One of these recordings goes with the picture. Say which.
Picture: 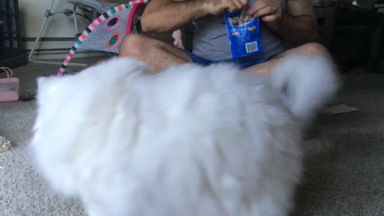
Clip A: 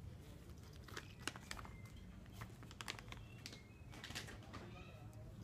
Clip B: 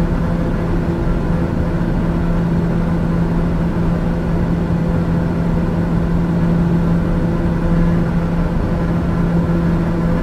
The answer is A